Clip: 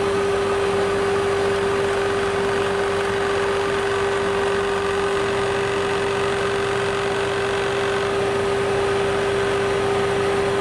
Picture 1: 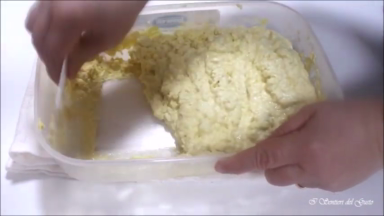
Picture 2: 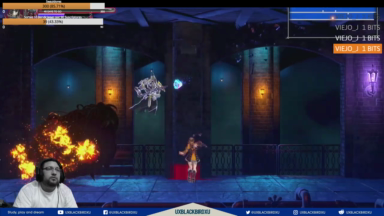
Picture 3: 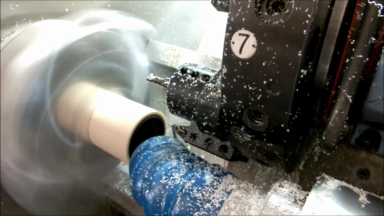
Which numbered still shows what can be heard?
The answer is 3